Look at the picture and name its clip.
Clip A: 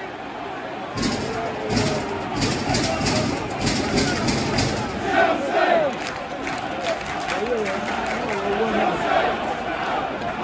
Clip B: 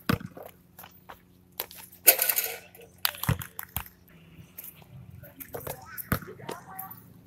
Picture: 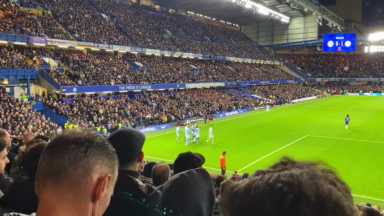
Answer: A